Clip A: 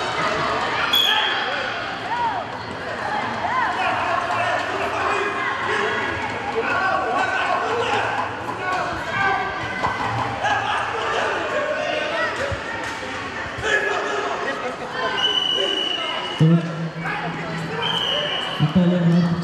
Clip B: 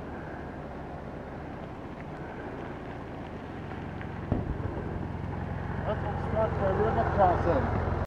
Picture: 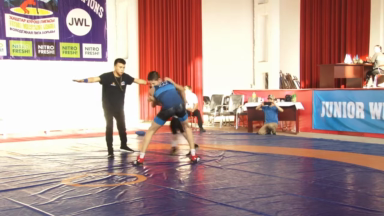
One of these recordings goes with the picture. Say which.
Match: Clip A